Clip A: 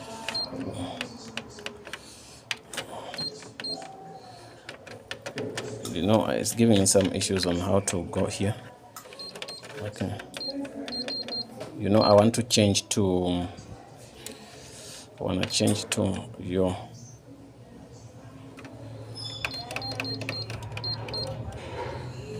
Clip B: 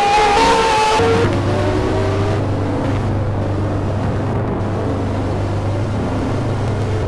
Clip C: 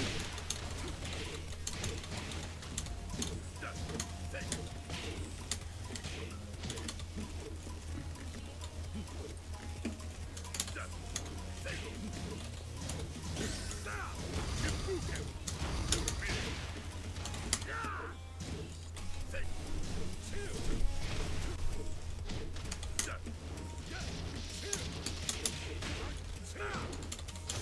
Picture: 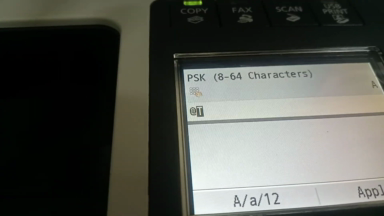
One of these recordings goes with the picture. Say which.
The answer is A